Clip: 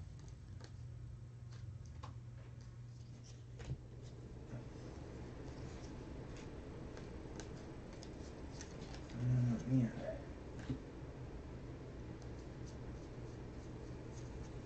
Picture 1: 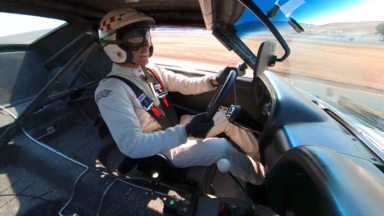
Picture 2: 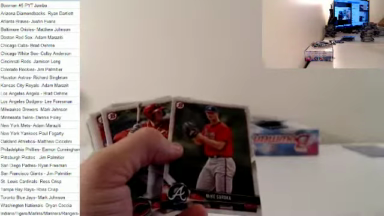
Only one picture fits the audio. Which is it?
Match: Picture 2